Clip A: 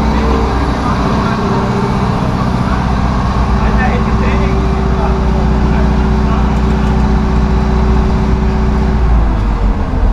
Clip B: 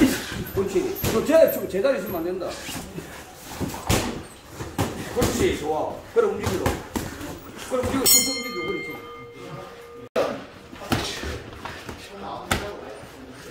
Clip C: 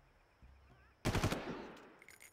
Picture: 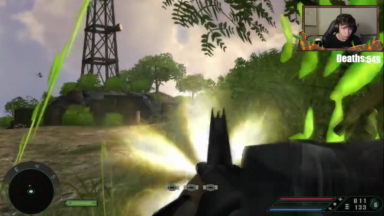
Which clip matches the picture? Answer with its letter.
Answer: C